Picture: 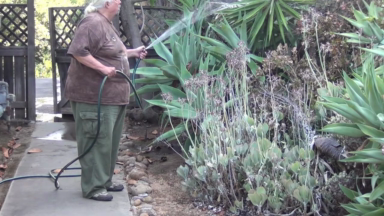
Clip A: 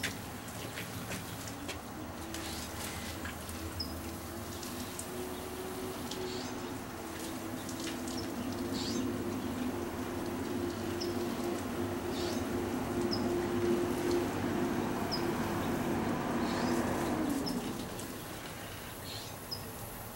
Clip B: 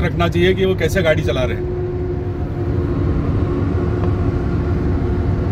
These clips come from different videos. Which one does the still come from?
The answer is A